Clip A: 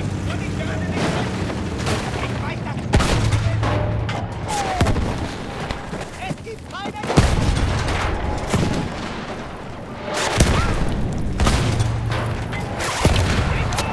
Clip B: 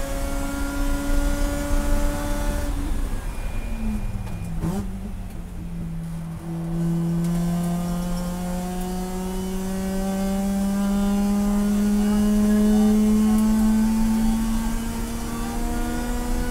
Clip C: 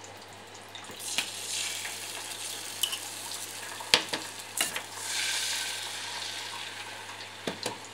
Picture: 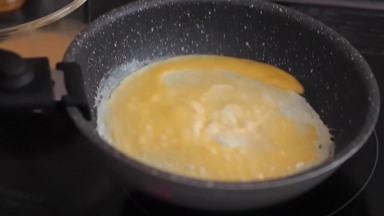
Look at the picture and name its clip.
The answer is C